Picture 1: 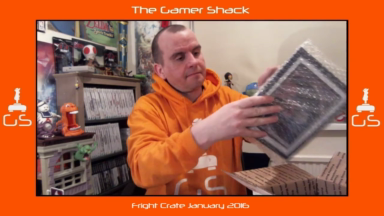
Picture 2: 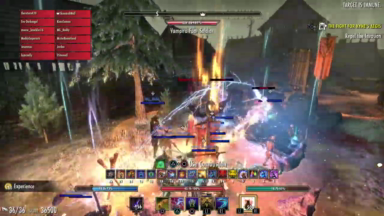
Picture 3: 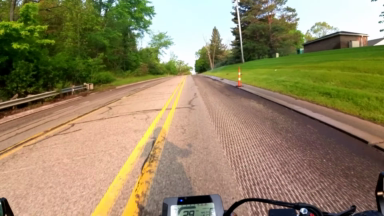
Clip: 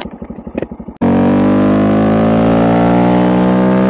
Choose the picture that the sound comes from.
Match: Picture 3